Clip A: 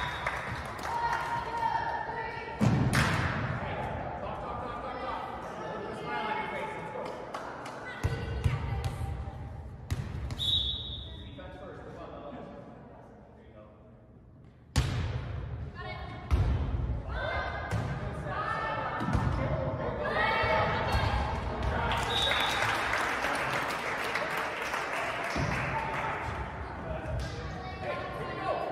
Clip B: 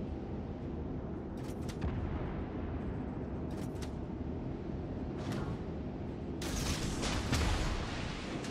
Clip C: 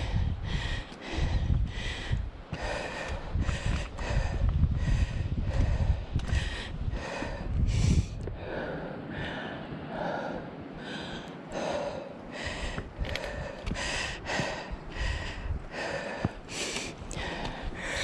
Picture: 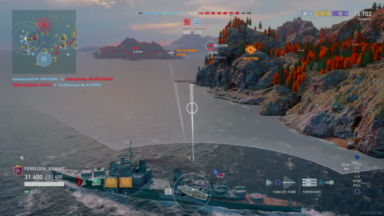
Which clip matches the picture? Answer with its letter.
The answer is B